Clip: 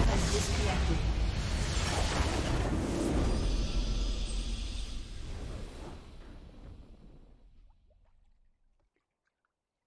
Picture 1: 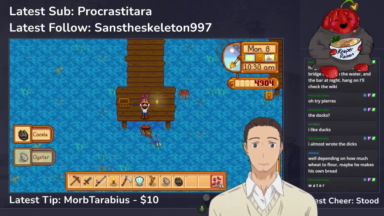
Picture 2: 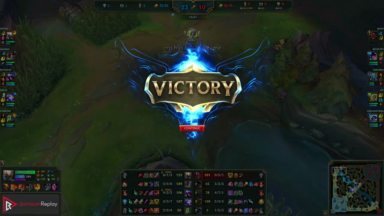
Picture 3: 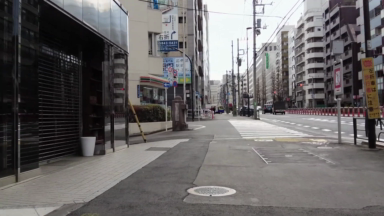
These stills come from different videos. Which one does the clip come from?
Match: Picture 2